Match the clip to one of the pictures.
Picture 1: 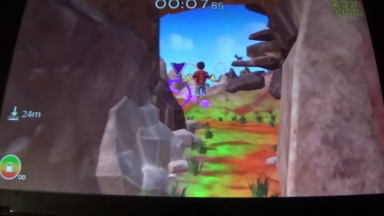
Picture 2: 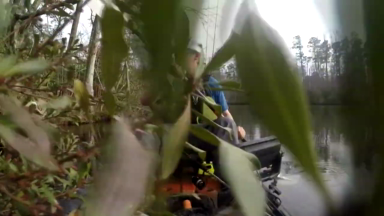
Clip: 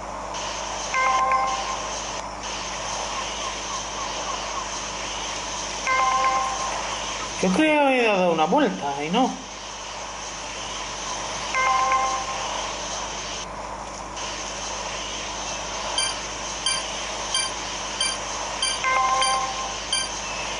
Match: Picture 1